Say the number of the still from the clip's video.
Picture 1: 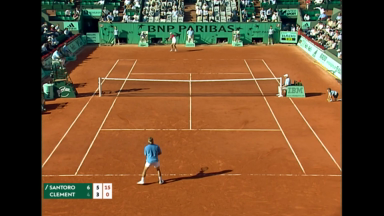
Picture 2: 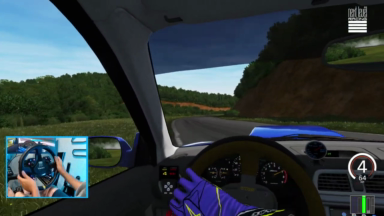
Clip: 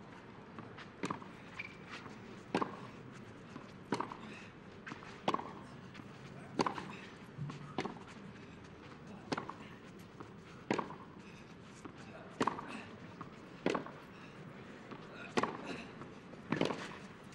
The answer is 1